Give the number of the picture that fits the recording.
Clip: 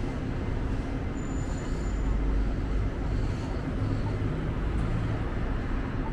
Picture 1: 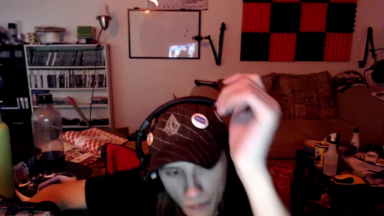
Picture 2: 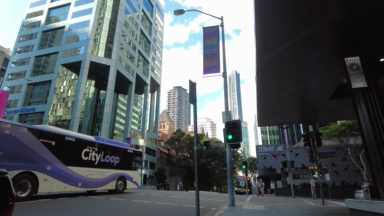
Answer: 2